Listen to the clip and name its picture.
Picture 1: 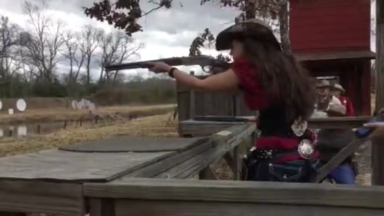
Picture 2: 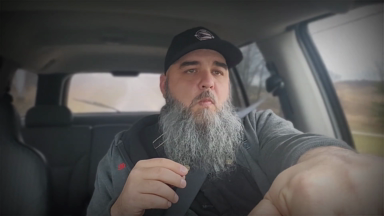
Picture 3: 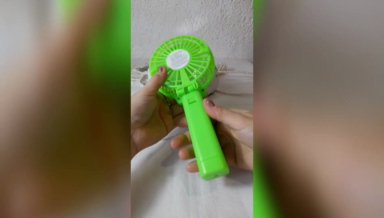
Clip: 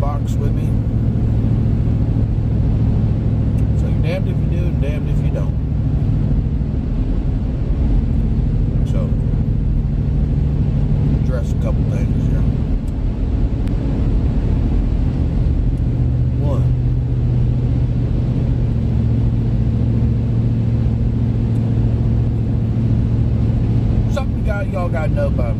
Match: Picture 2